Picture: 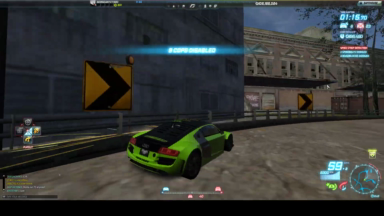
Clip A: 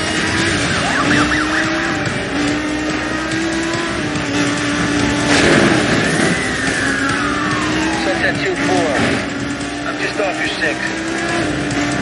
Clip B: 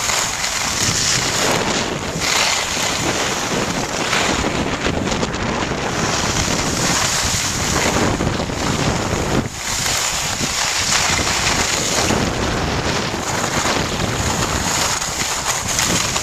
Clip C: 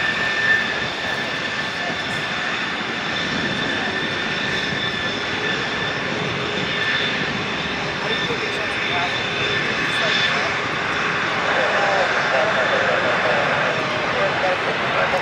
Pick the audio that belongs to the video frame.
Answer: A